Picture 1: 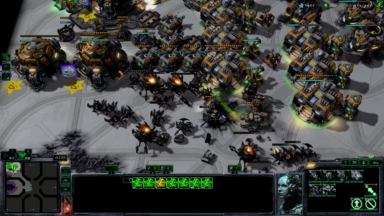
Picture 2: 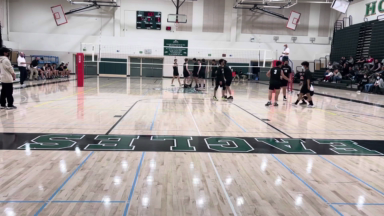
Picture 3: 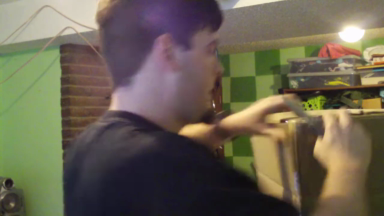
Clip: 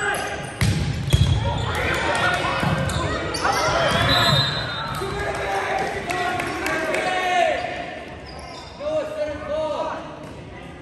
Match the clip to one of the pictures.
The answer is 2